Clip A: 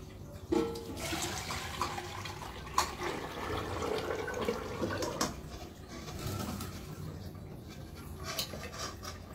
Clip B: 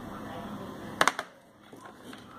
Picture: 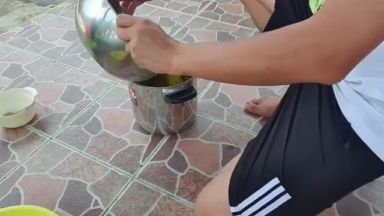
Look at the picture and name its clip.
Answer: A